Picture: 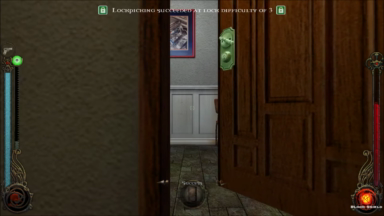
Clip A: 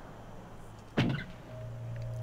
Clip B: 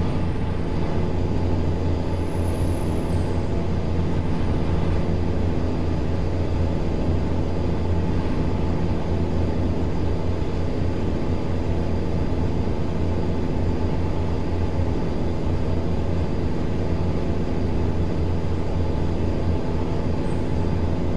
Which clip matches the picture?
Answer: A